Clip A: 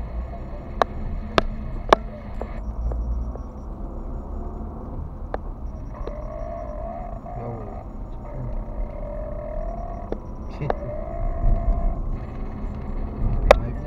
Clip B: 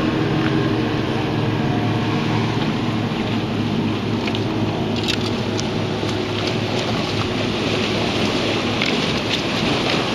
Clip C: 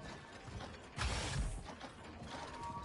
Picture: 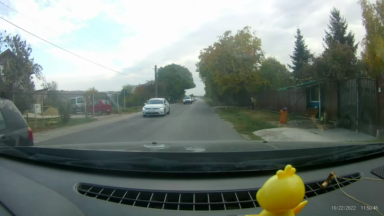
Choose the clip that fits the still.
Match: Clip A